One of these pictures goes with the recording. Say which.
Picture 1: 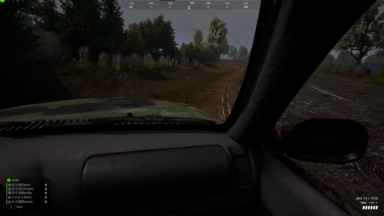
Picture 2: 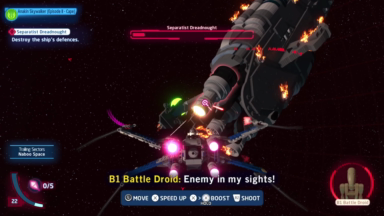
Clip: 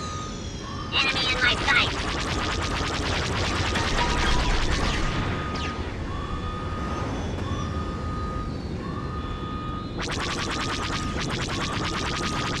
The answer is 2